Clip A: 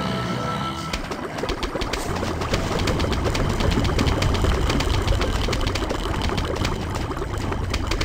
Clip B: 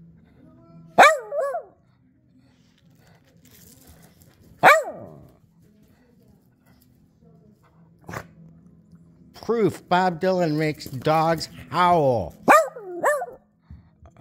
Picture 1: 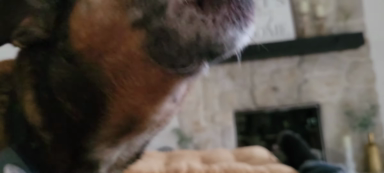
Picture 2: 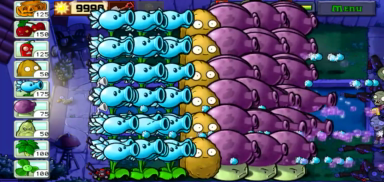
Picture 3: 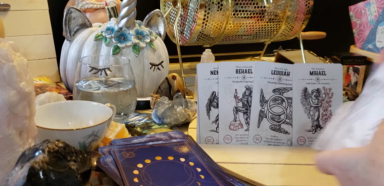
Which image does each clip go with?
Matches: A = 2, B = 1